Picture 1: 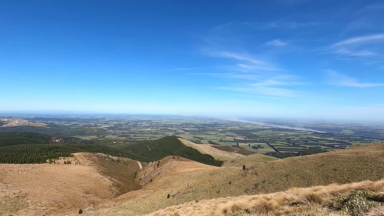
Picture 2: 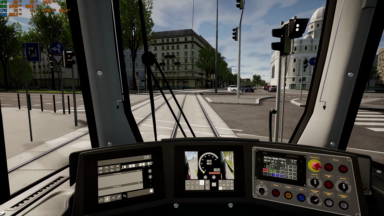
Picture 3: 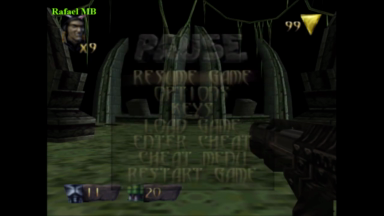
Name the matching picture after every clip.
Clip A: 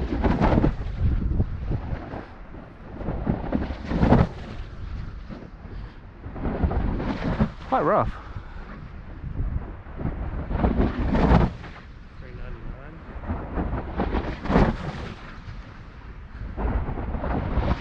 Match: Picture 1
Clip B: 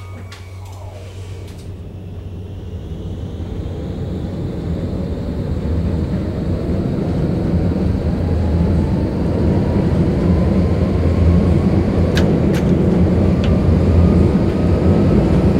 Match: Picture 2